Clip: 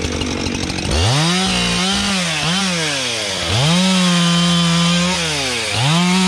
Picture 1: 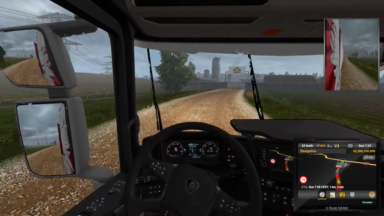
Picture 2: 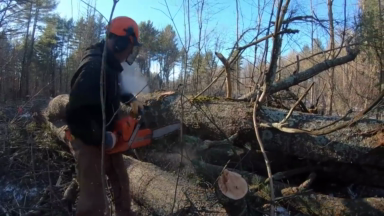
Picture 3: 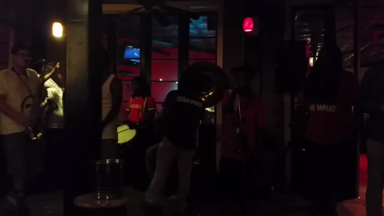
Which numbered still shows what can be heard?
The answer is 2